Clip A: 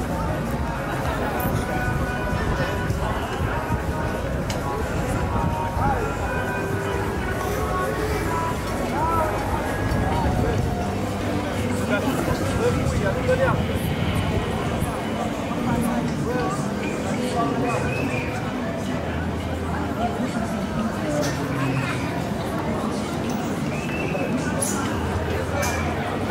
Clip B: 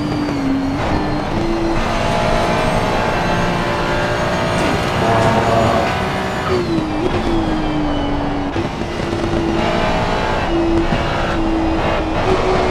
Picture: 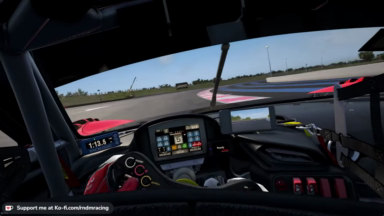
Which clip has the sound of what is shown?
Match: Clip B